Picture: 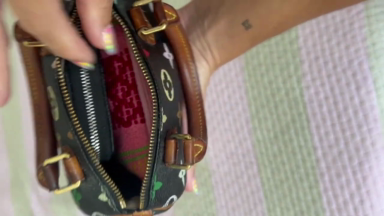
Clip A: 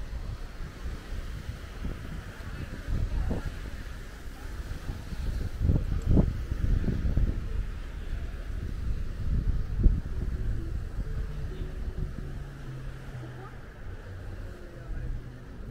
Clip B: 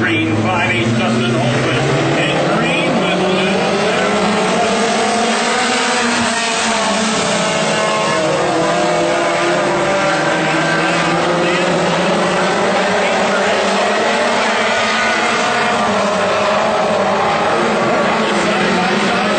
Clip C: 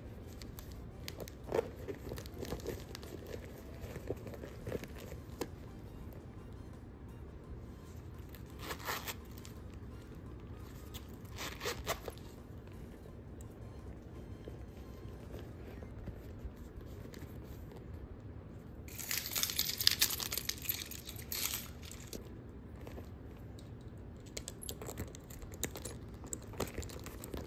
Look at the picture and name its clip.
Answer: C